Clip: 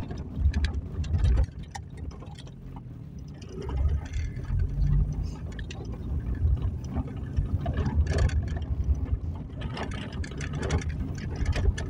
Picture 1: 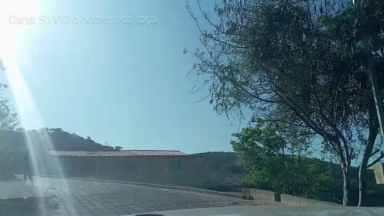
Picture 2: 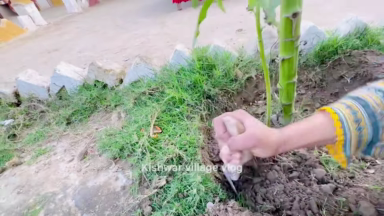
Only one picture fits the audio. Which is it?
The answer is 1